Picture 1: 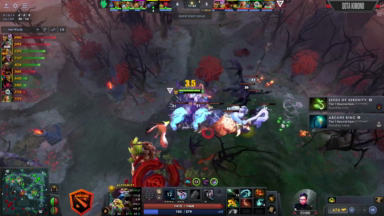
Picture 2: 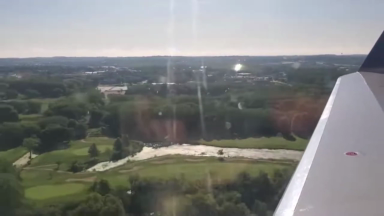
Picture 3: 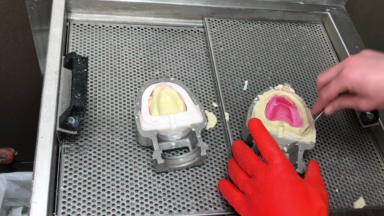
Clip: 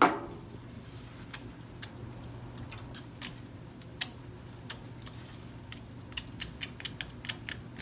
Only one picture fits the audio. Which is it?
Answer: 3